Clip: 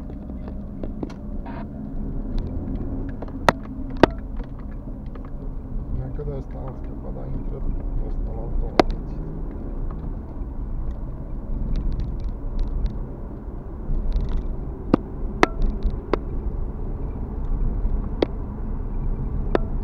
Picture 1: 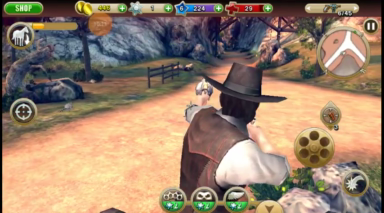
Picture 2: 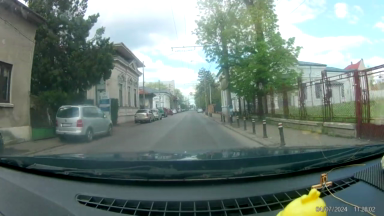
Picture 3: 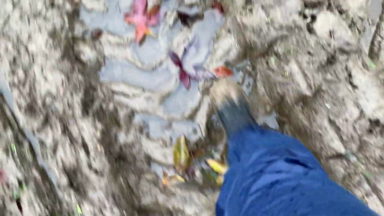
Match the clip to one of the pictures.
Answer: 2